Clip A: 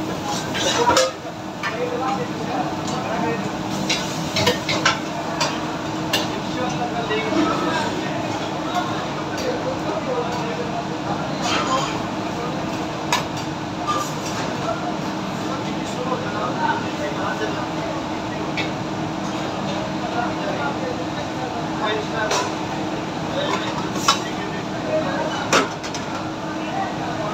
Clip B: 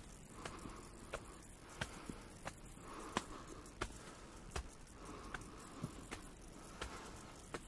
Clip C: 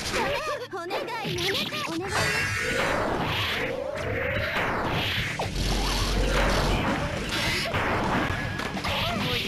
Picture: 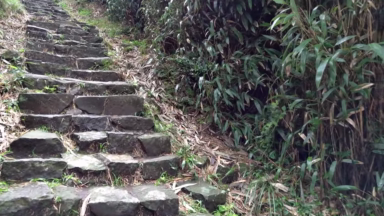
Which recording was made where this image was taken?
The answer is B